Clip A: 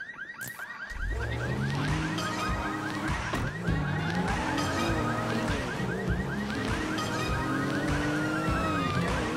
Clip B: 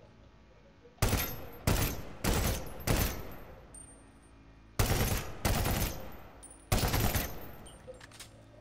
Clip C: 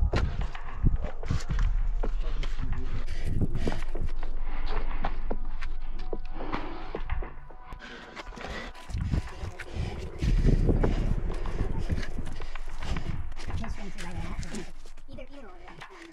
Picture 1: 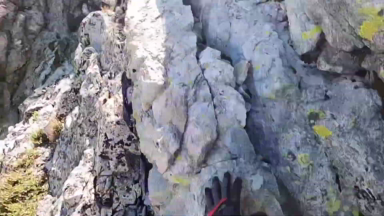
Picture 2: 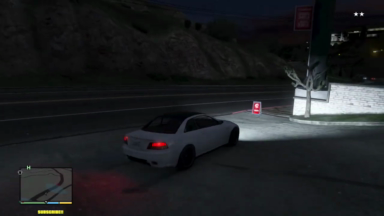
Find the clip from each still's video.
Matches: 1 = C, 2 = A